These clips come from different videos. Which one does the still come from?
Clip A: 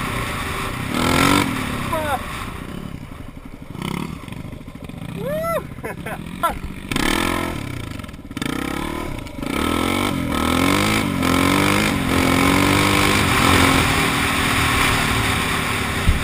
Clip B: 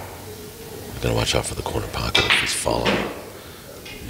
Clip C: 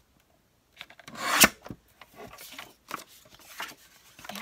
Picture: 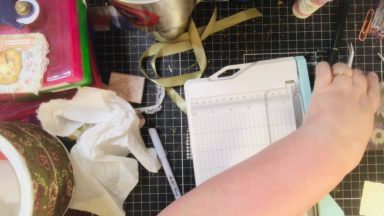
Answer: C